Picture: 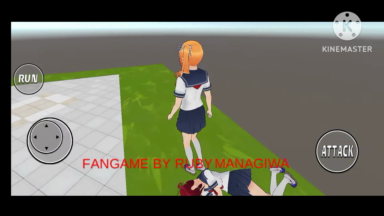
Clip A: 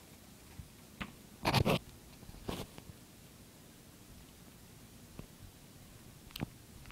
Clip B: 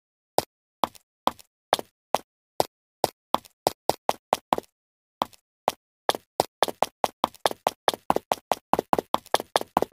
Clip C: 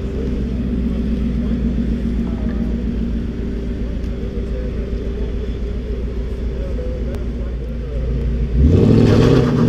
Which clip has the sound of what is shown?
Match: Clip B